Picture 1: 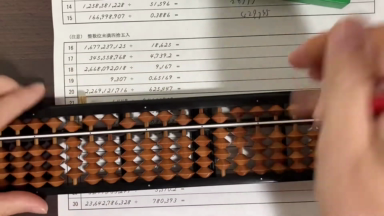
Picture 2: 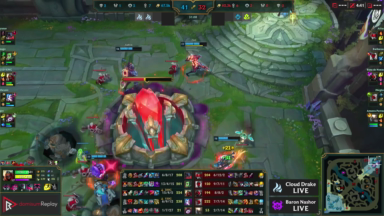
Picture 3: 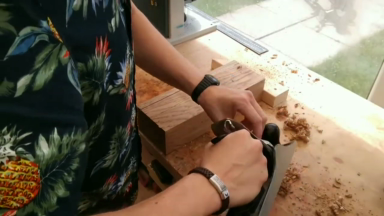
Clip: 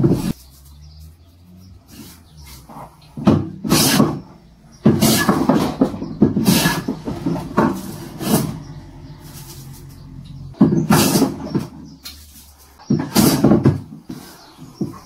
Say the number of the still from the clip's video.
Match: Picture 3